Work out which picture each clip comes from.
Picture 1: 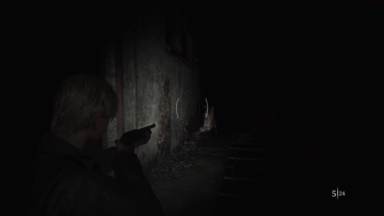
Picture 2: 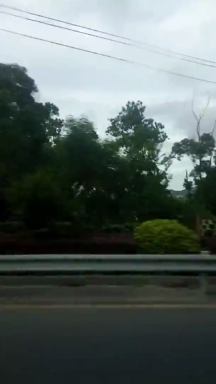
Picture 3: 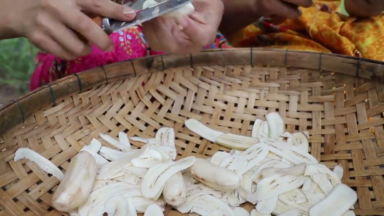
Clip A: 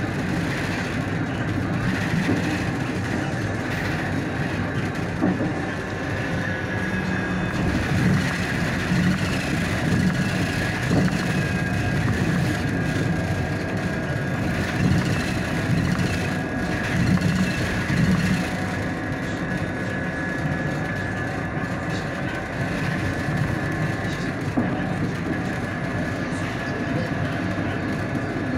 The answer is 2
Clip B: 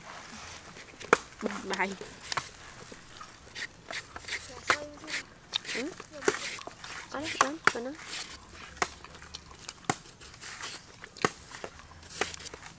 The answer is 3